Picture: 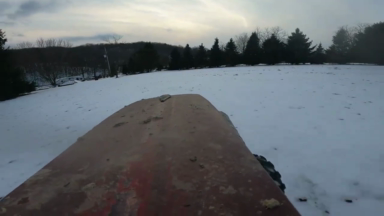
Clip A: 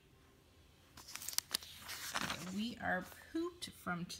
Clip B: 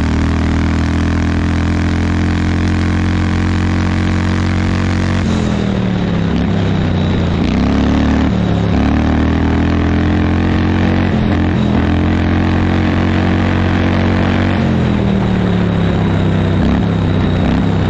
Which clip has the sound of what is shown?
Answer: B